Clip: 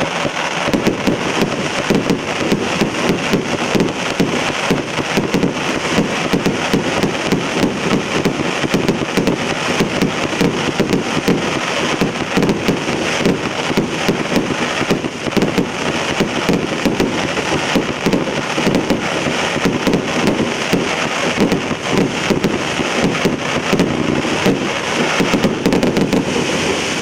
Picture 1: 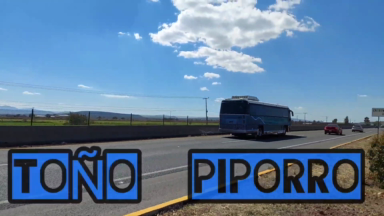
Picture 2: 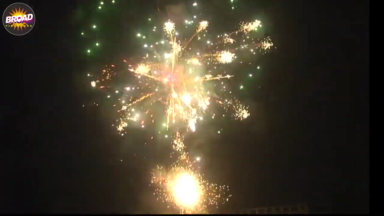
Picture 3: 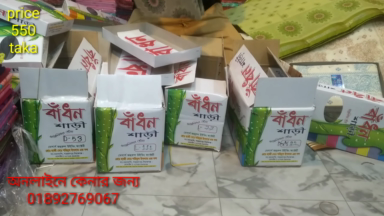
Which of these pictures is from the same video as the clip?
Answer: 2